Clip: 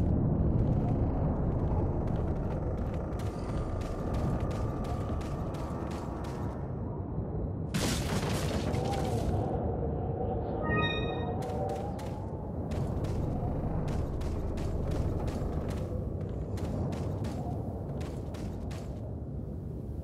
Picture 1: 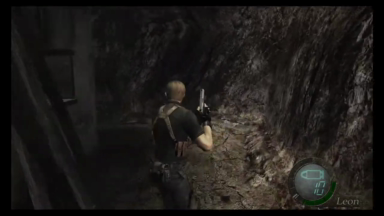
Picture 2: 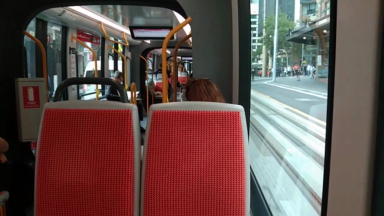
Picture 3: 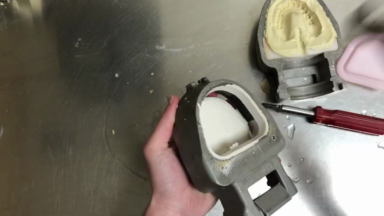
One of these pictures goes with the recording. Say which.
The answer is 1